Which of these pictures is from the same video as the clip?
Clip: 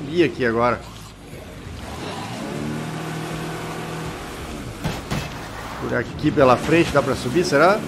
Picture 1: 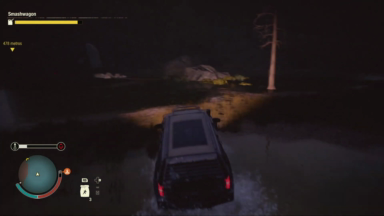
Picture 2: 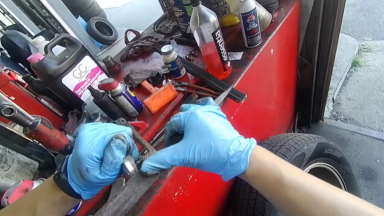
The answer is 1